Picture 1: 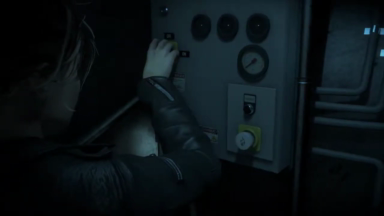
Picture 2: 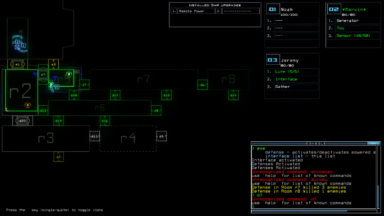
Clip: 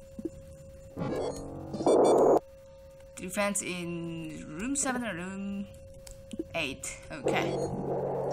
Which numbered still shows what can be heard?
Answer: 2